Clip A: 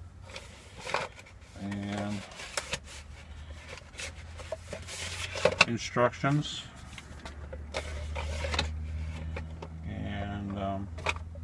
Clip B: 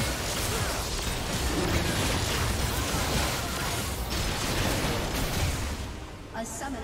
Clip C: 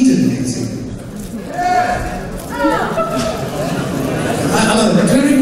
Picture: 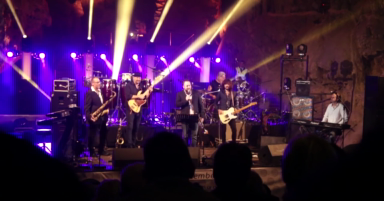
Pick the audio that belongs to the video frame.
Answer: C